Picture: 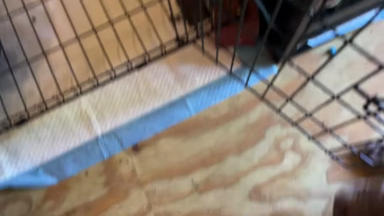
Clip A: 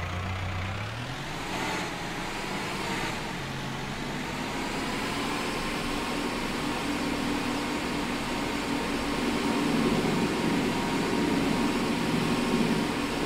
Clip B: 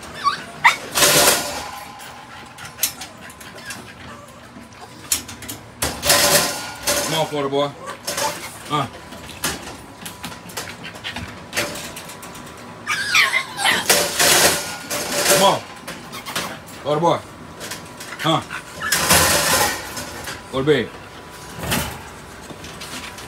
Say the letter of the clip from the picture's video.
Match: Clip B